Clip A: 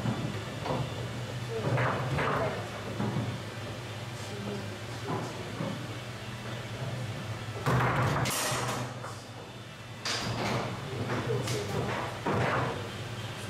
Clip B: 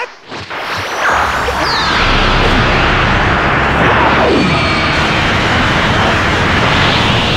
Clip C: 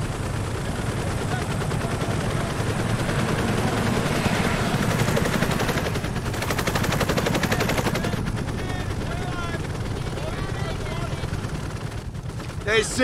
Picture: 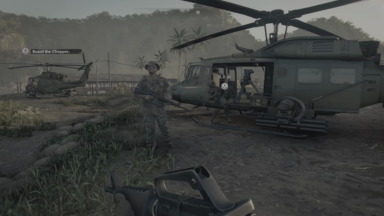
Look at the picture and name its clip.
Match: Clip C